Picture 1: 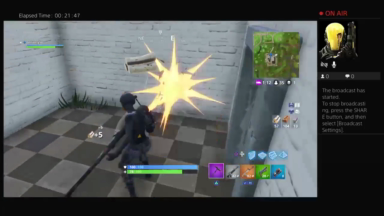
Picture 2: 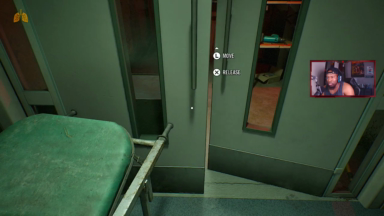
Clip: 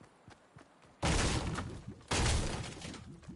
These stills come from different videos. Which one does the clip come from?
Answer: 1